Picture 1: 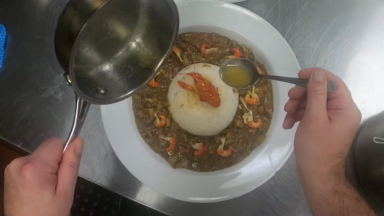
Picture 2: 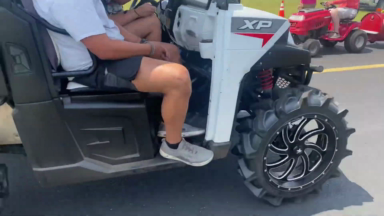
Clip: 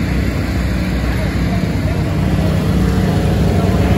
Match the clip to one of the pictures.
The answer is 2